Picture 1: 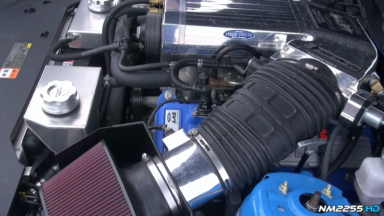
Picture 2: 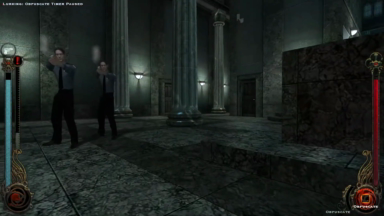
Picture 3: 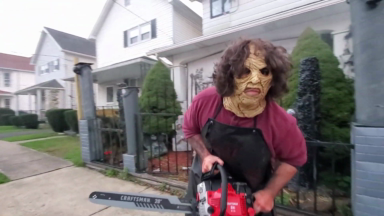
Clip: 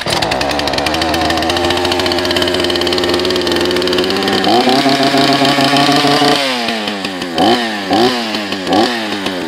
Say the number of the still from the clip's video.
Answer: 3